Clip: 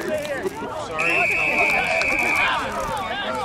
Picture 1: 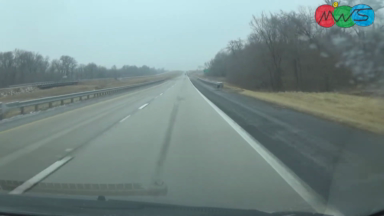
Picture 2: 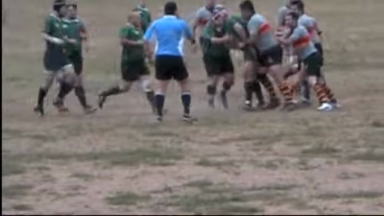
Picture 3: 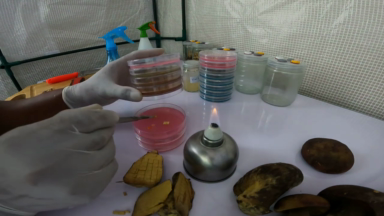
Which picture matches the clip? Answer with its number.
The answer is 2